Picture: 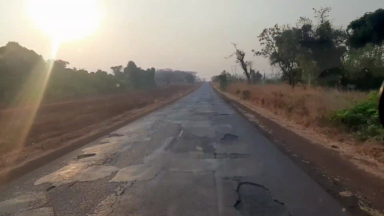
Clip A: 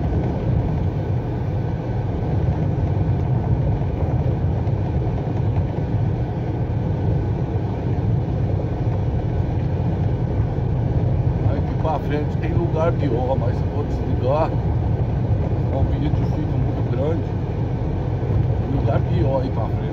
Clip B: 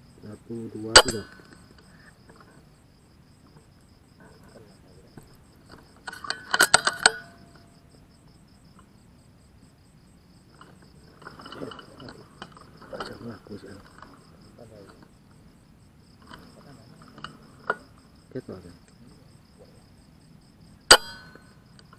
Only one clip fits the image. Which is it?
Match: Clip A